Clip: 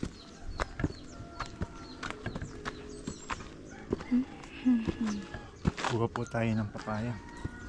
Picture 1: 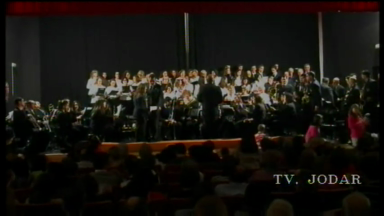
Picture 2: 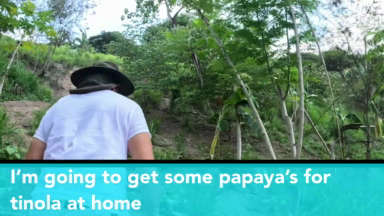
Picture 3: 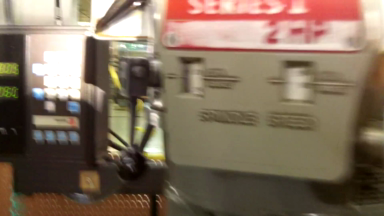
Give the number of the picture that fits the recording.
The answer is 2